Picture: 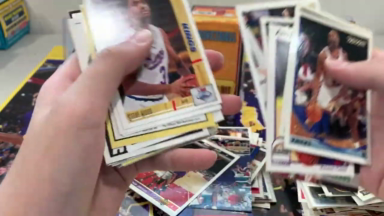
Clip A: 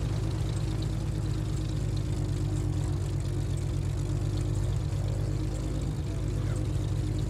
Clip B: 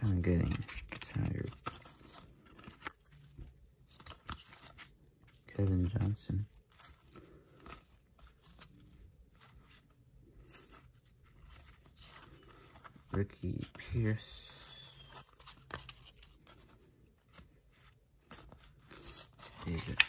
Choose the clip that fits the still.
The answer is B